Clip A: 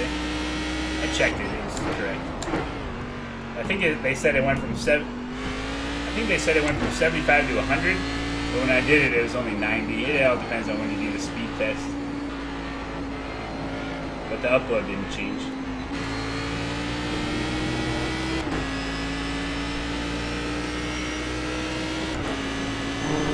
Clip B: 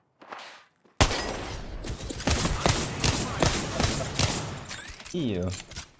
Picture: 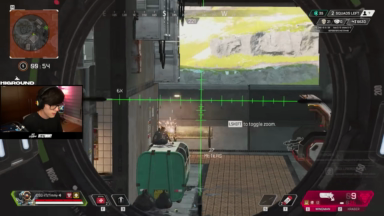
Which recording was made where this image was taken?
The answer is B